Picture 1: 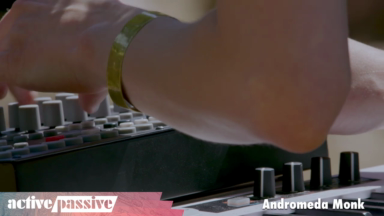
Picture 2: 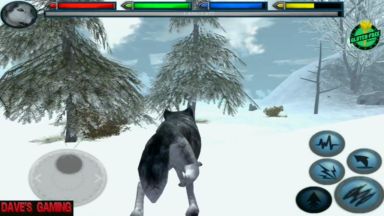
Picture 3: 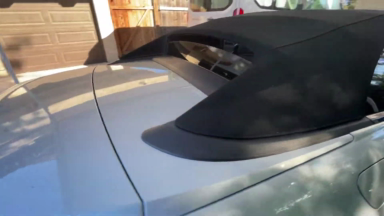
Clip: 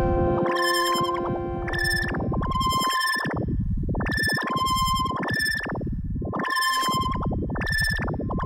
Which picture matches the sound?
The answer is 1